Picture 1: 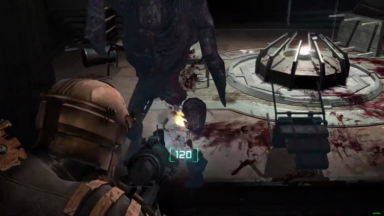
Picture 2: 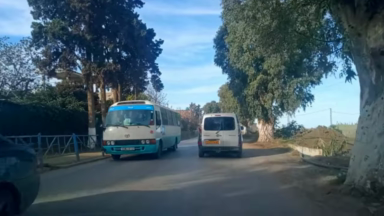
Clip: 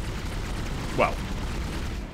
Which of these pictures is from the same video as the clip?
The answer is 1